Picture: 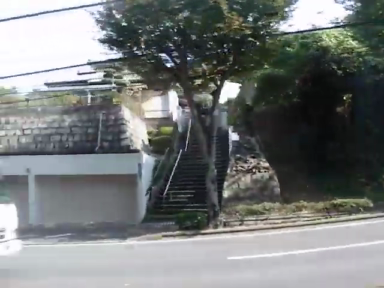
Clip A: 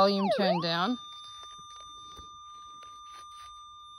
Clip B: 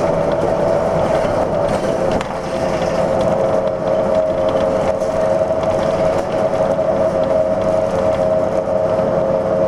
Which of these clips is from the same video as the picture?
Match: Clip B